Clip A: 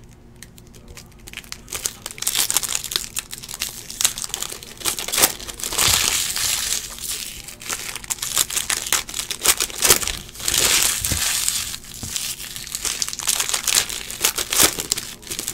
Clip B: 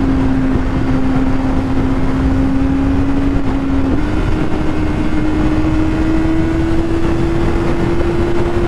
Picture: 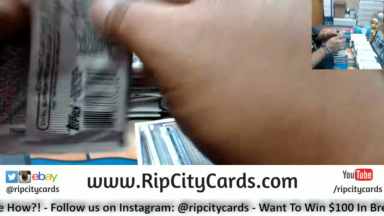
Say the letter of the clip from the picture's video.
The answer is A